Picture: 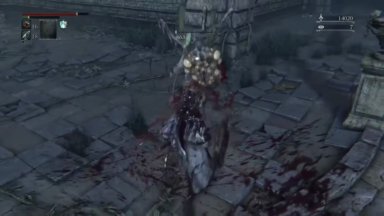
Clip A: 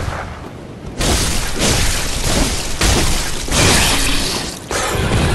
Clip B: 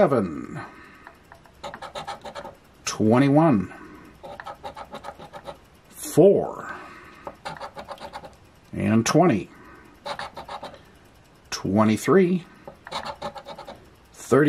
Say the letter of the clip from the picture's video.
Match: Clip A